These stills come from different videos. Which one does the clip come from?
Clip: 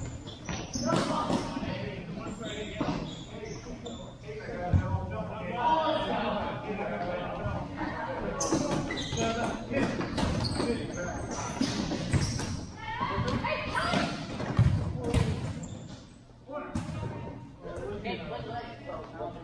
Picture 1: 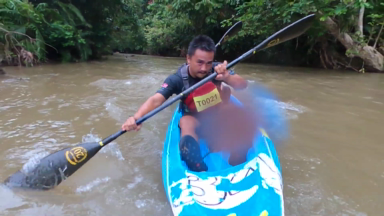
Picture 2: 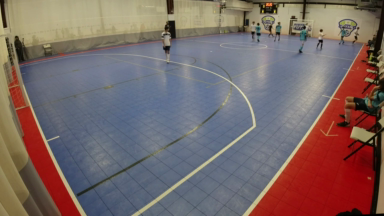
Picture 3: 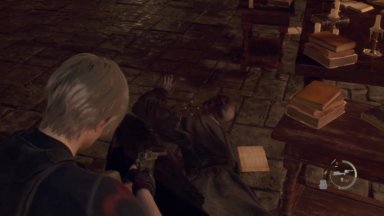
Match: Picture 2